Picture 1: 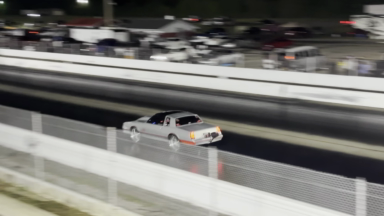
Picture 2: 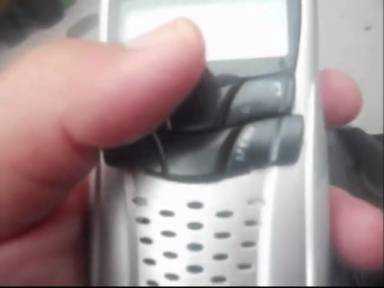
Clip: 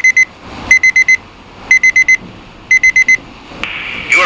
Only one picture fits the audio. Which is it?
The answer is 2